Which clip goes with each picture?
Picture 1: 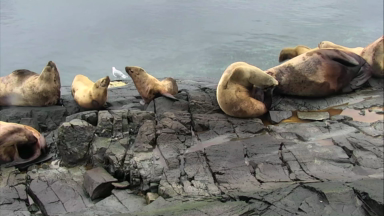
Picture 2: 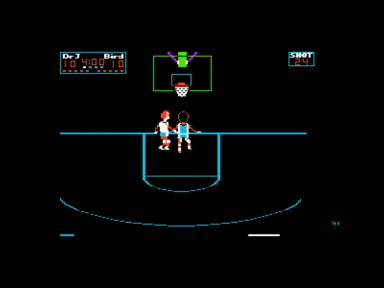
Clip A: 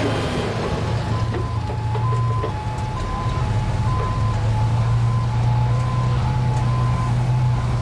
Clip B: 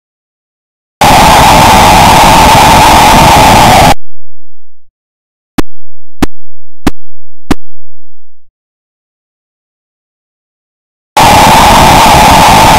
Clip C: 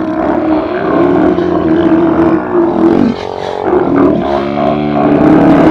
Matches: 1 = C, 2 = B